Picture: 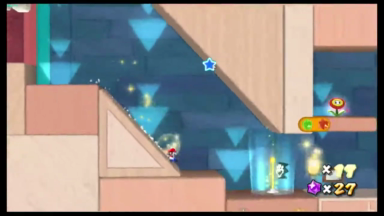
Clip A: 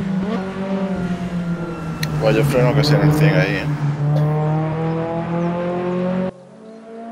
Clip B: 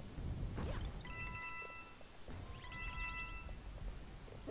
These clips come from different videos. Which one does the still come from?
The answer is B